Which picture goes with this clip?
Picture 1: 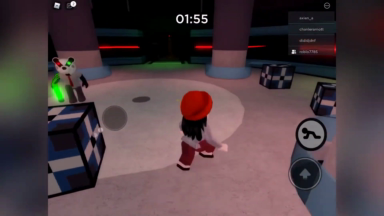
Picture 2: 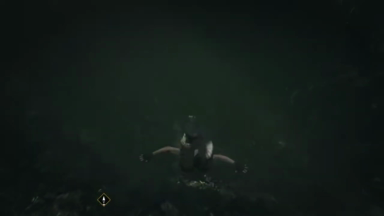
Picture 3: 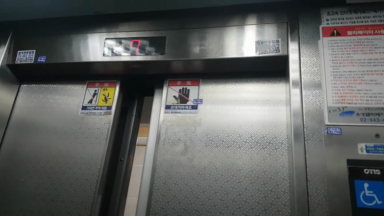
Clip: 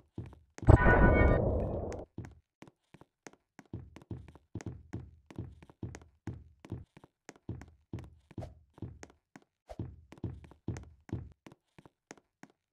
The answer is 1